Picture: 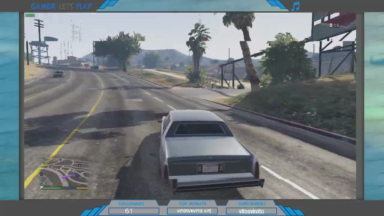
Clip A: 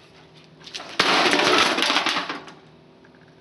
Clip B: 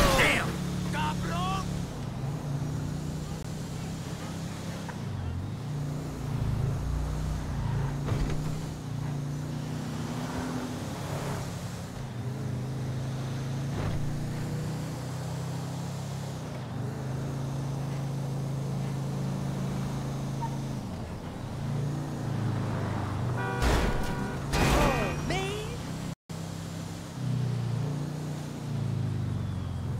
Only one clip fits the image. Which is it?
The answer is B